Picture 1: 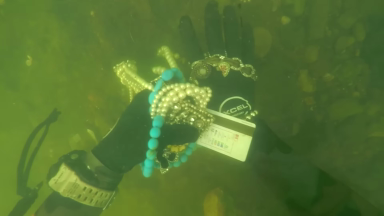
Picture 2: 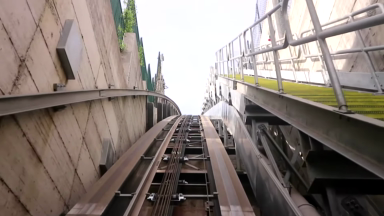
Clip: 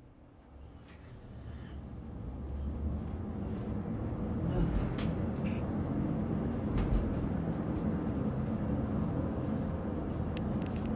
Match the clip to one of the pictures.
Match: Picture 2